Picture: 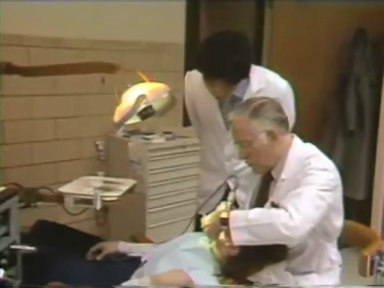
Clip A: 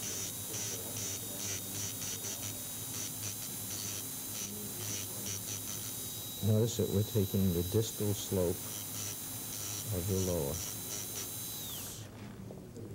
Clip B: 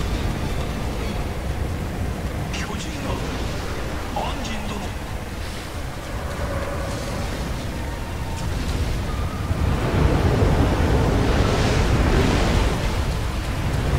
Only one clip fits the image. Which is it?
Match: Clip A